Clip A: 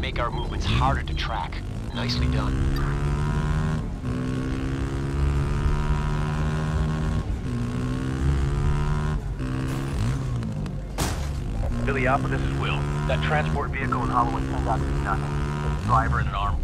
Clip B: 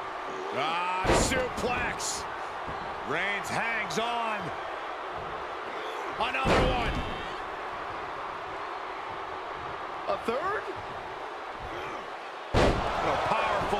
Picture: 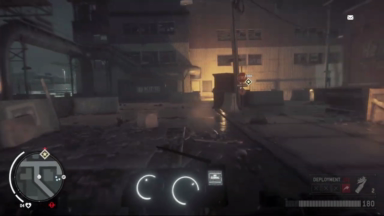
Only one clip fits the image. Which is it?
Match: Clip A